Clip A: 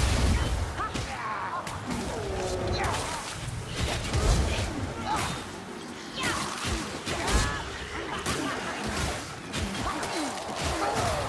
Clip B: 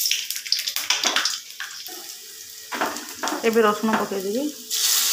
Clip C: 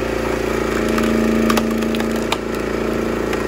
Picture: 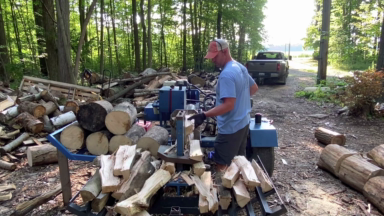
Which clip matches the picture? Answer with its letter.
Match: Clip C